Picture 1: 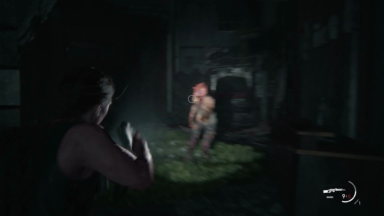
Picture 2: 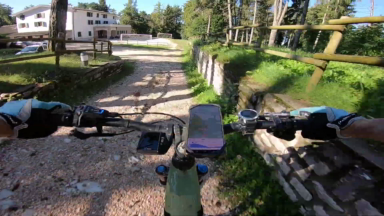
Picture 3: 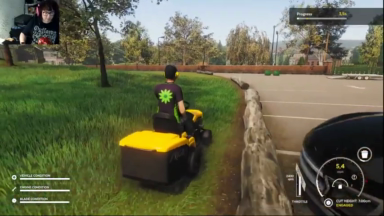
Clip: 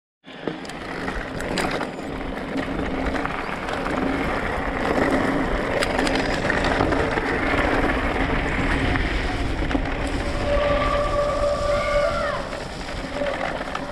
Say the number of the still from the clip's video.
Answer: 2